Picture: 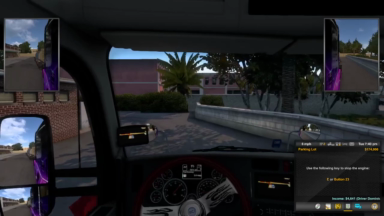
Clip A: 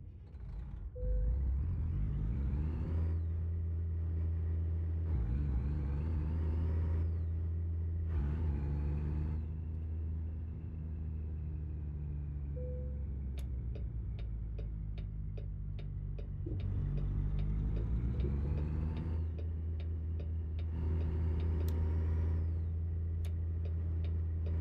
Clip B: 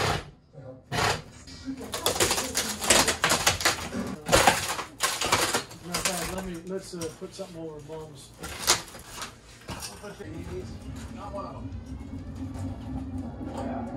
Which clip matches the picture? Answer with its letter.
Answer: A